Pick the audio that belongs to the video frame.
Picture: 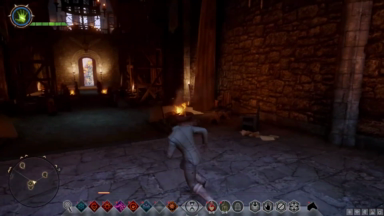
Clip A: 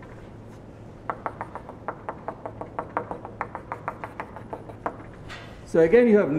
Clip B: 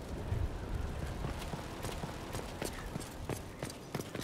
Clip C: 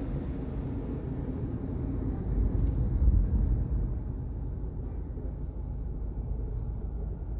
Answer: B